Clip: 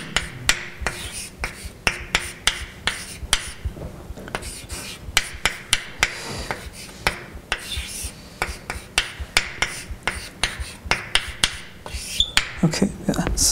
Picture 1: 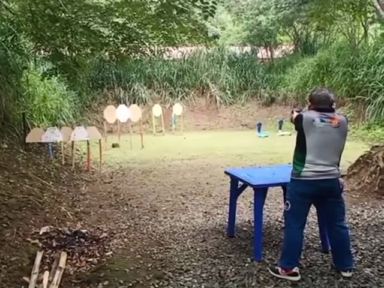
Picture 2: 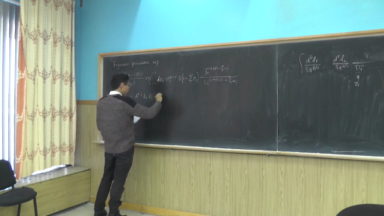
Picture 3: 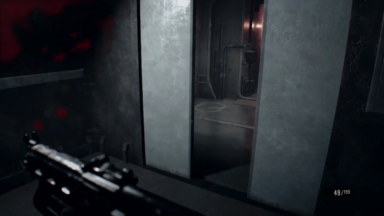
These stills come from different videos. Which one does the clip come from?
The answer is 2